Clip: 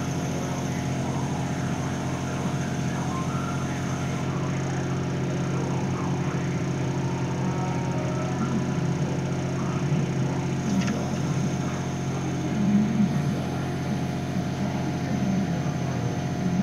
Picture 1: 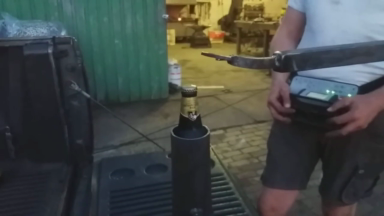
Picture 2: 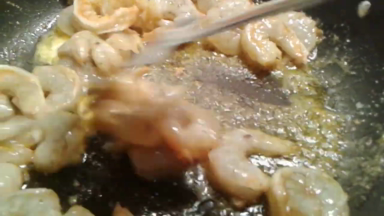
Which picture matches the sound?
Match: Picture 1